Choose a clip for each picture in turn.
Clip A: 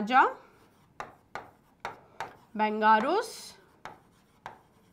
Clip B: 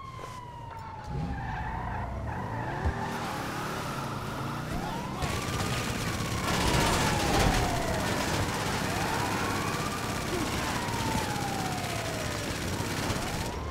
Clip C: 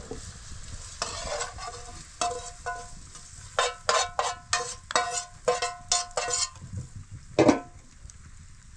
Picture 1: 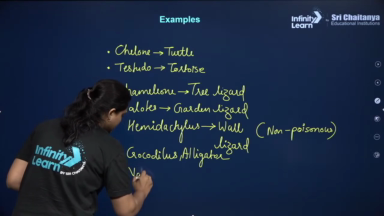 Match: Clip A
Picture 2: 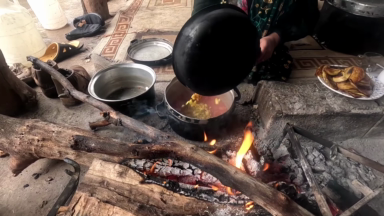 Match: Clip C